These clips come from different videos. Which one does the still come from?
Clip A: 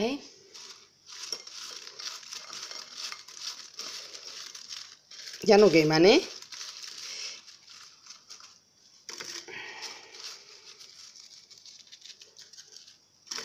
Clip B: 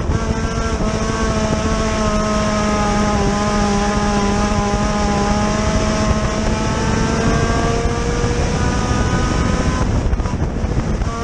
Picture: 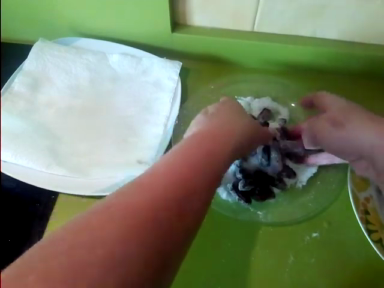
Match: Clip A